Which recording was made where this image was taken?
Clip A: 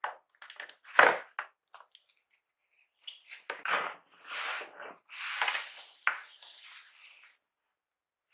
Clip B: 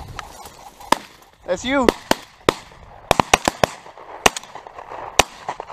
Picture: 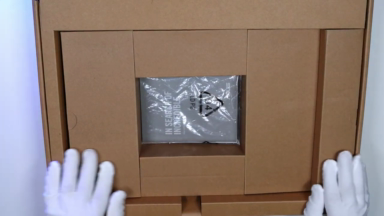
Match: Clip A